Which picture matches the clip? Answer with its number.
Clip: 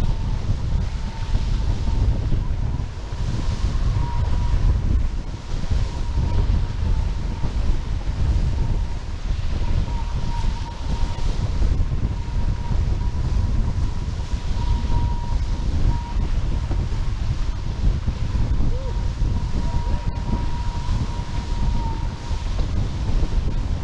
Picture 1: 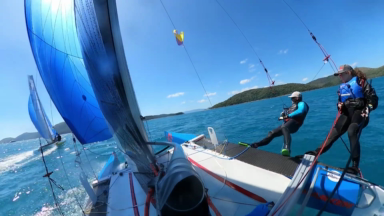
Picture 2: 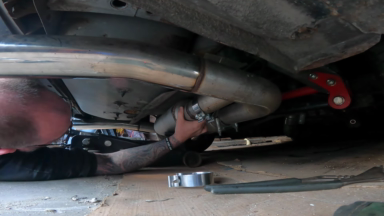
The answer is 1